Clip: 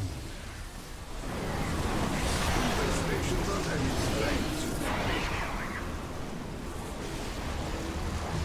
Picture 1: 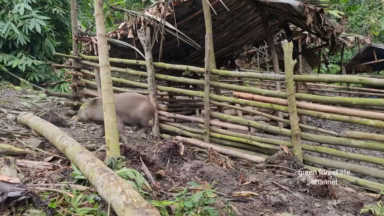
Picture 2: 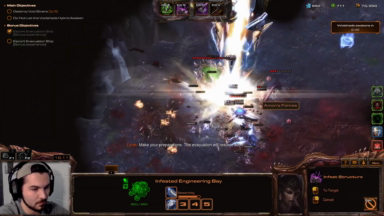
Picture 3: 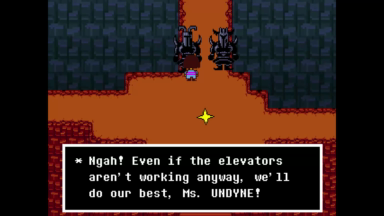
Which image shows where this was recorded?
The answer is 2